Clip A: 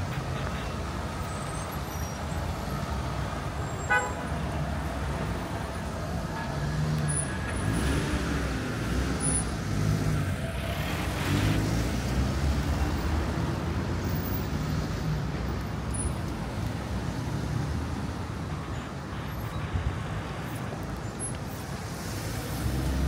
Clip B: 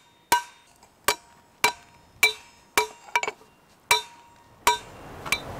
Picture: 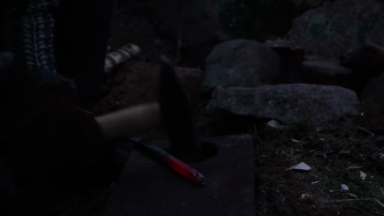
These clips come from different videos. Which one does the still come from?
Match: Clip B